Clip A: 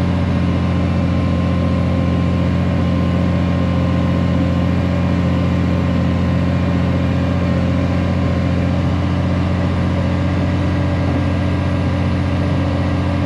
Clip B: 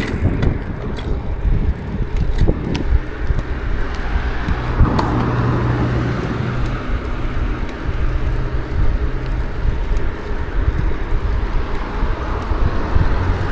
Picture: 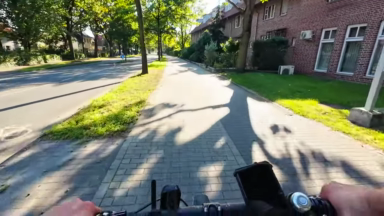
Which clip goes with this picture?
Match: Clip B